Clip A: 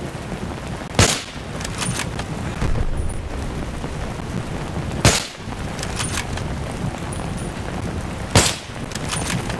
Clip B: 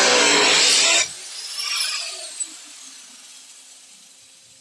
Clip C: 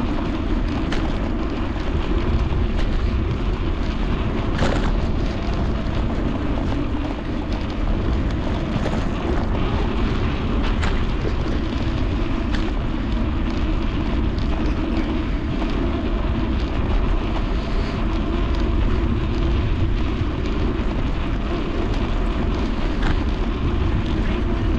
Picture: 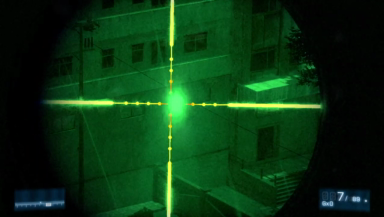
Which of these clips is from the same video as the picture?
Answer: A